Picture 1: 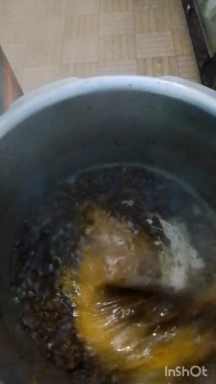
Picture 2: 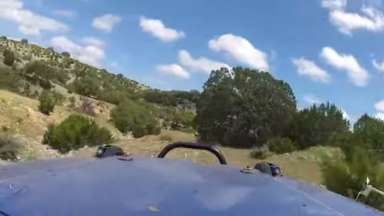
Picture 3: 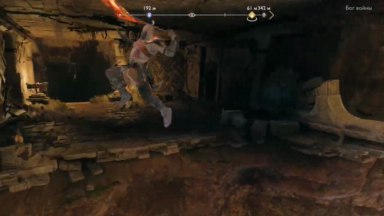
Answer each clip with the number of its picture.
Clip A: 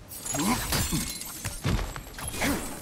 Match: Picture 3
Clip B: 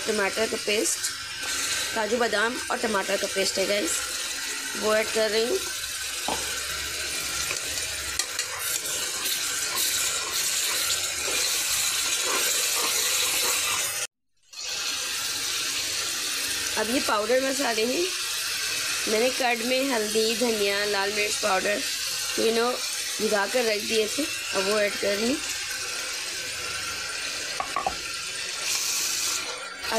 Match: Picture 1